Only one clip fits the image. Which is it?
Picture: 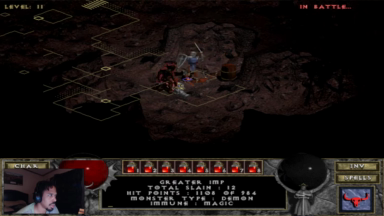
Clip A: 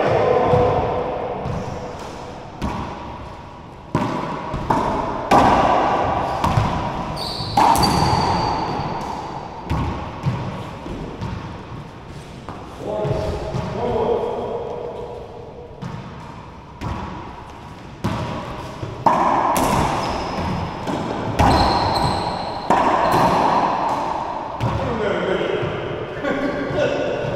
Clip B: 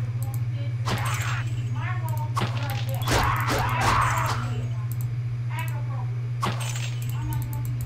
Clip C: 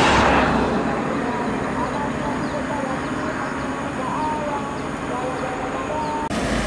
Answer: B